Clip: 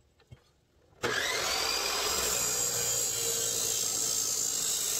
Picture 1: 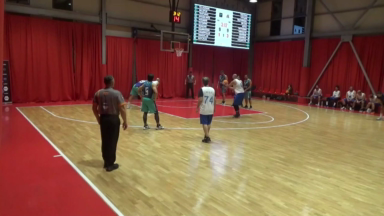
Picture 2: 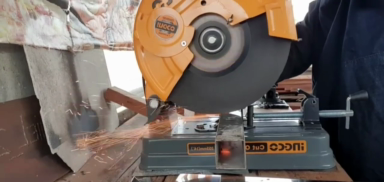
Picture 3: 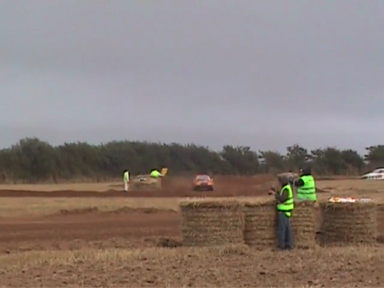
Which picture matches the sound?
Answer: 2